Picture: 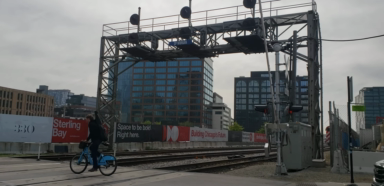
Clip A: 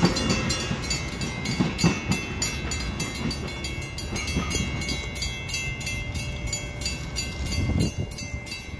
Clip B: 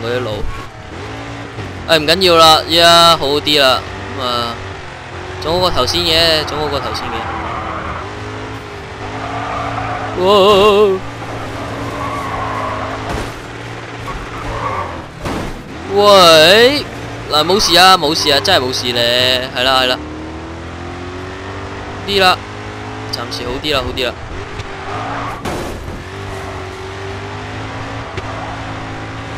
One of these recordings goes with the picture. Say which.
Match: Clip A